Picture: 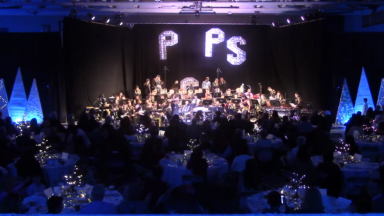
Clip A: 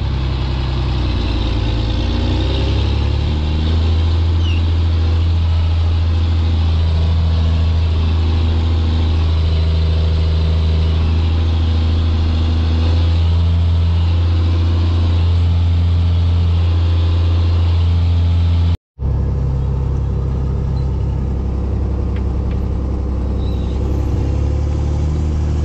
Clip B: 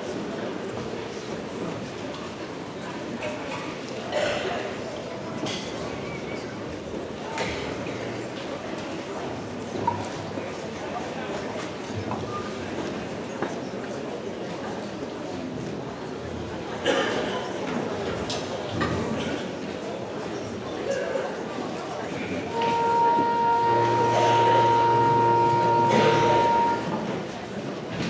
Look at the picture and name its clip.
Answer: B